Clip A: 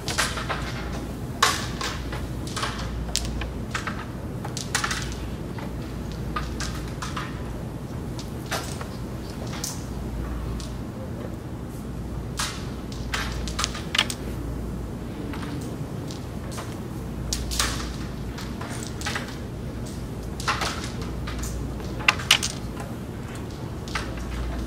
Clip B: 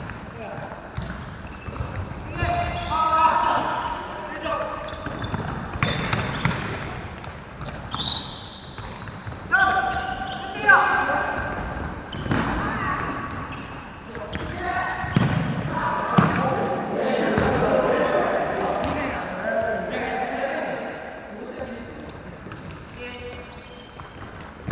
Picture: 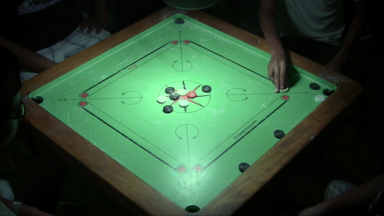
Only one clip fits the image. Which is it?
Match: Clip A